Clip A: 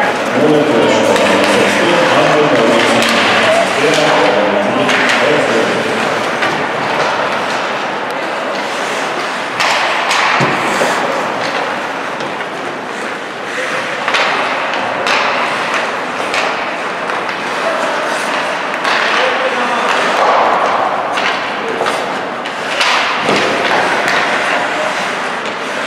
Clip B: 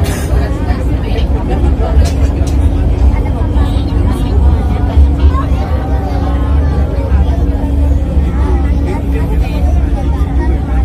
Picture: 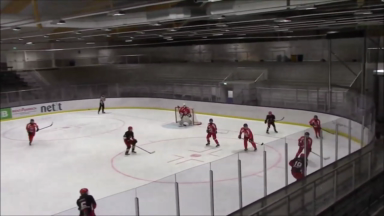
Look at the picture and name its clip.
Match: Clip A